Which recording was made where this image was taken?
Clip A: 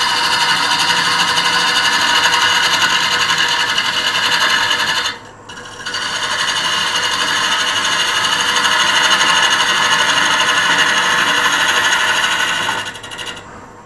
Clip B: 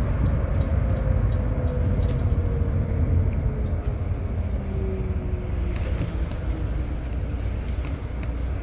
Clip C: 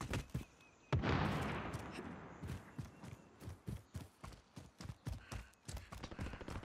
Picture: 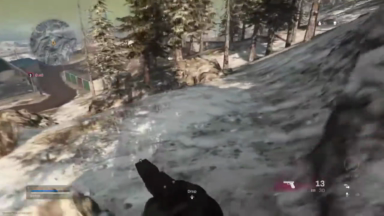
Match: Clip C